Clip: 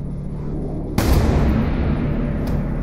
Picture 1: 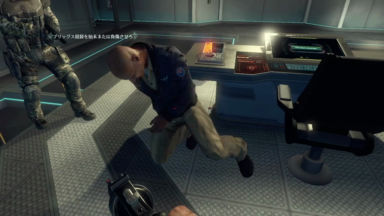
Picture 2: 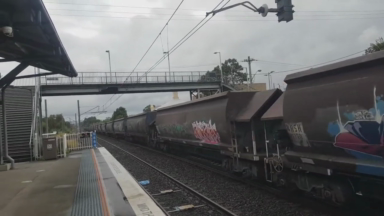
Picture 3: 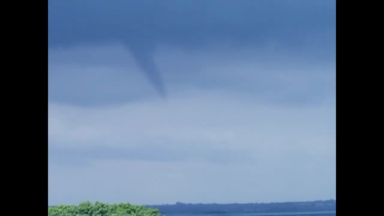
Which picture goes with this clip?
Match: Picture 1